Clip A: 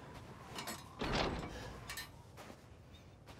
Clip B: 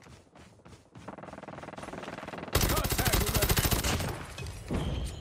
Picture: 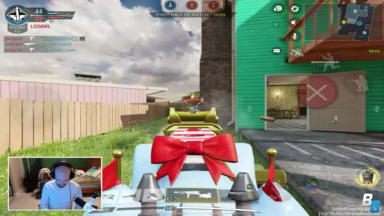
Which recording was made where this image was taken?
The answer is B